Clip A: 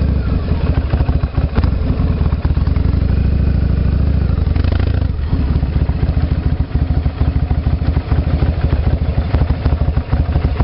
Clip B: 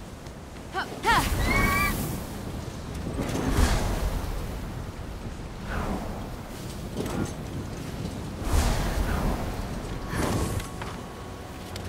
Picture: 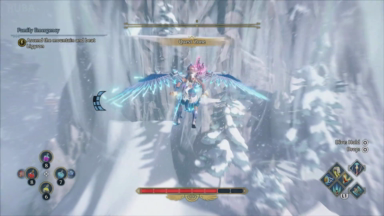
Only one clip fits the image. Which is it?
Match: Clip B